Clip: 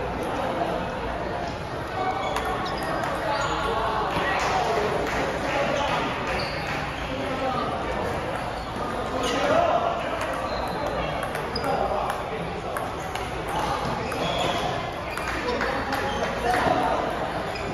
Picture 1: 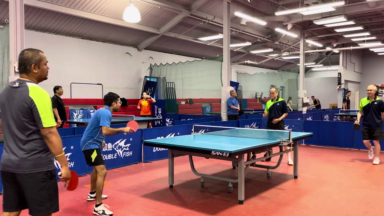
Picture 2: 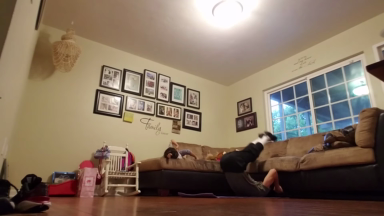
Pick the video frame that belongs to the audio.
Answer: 1